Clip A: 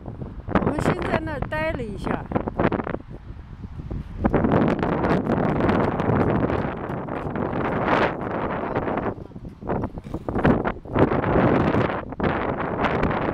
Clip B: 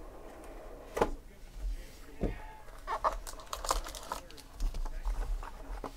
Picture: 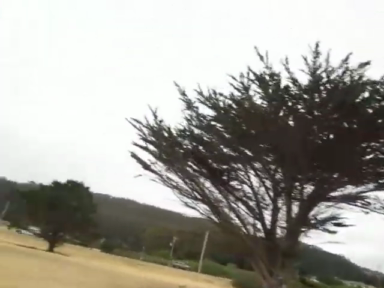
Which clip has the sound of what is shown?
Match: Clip A